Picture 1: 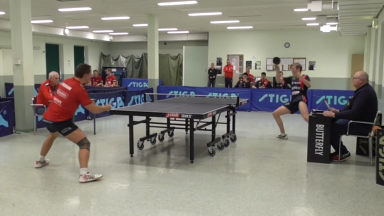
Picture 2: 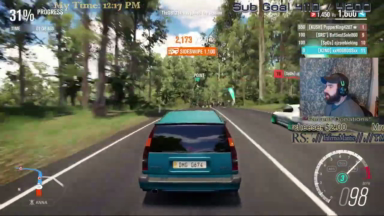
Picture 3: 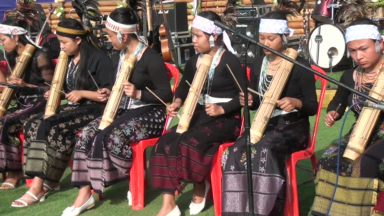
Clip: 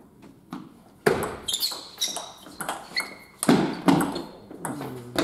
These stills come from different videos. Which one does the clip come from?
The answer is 1